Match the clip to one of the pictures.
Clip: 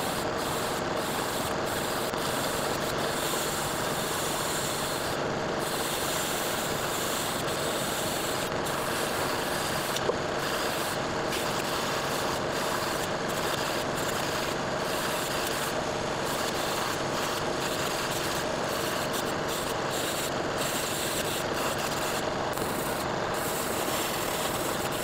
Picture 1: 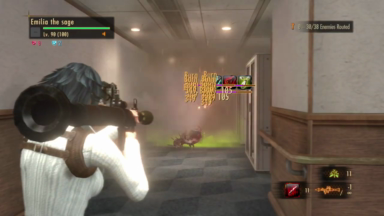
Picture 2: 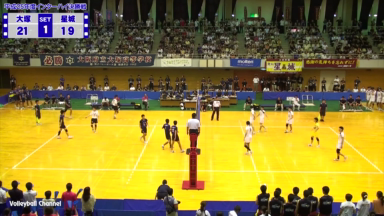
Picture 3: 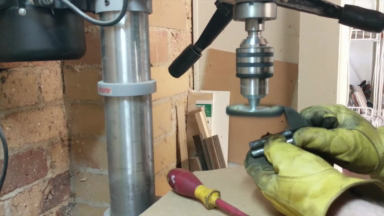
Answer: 3